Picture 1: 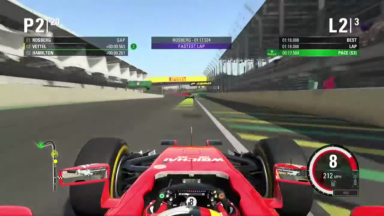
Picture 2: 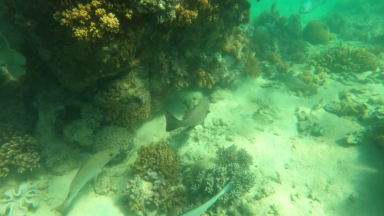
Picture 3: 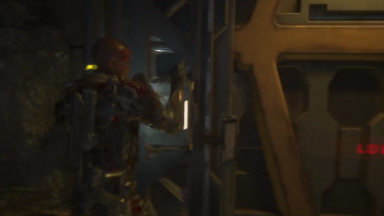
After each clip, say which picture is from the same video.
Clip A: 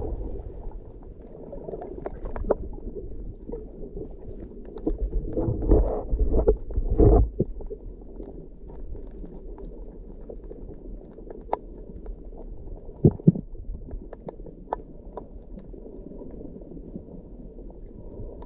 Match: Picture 2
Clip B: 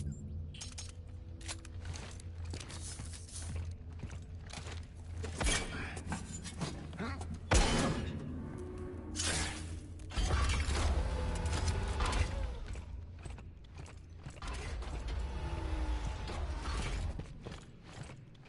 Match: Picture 3